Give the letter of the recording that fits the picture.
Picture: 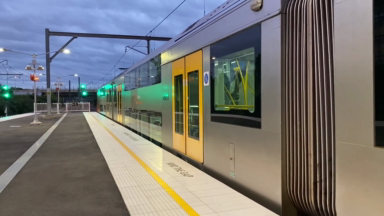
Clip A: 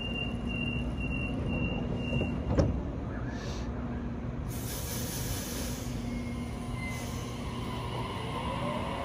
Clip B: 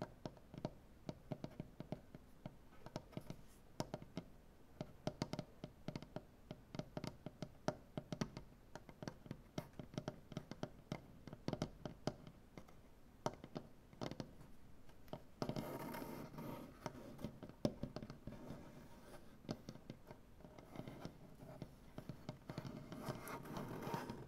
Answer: A